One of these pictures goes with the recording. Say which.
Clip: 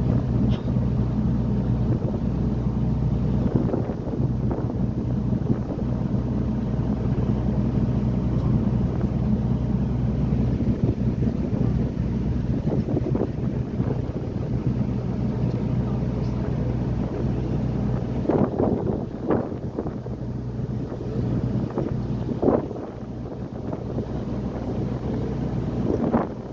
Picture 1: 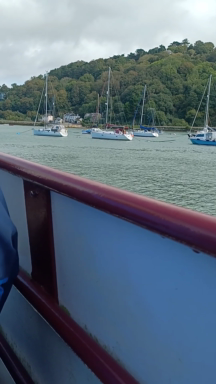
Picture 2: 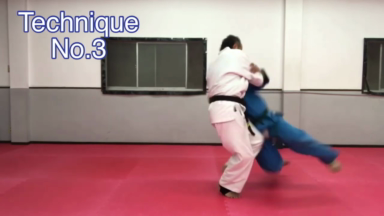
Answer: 1